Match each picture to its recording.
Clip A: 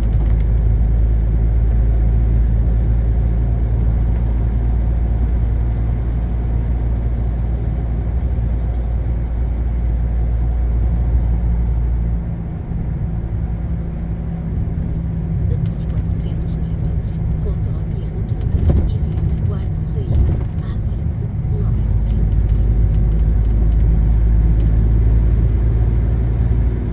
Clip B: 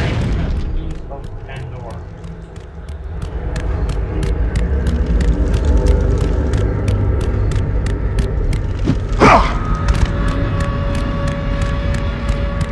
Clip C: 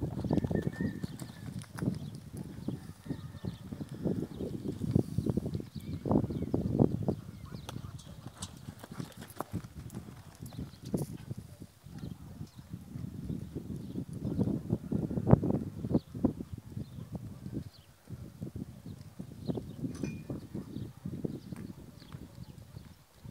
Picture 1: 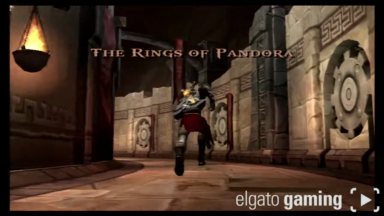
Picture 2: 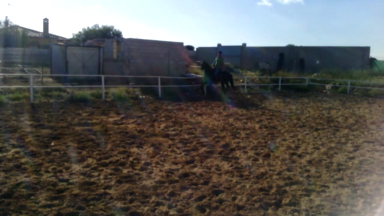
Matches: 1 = B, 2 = C